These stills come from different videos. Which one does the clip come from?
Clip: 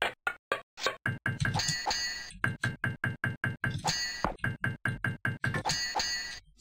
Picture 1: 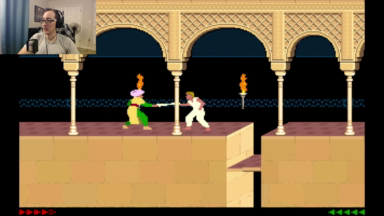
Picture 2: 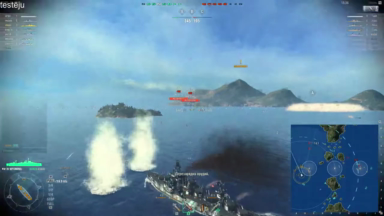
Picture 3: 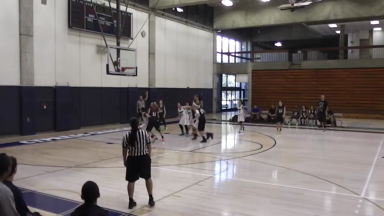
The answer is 1